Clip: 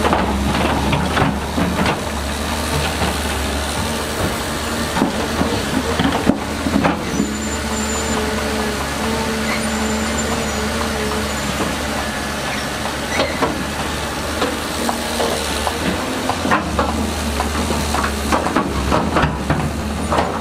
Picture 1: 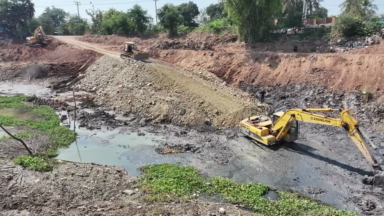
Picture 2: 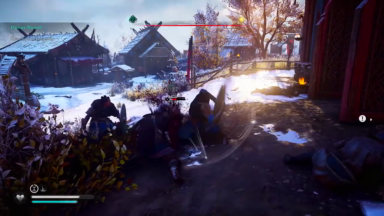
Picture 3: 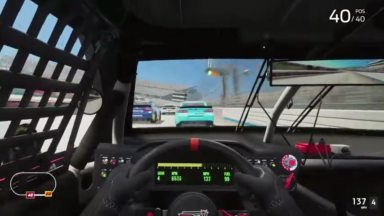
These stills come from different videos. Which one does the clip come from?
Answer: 1